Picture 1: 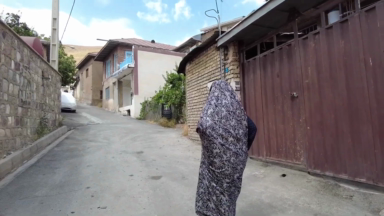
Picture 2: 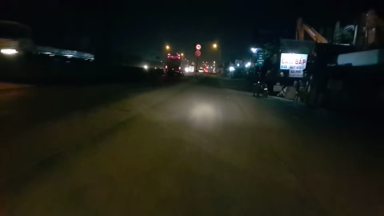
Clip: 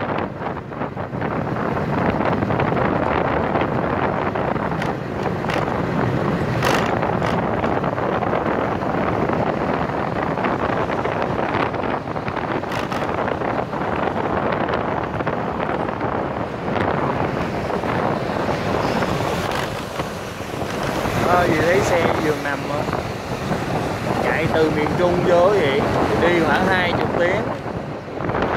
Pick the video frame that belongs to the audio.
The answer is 2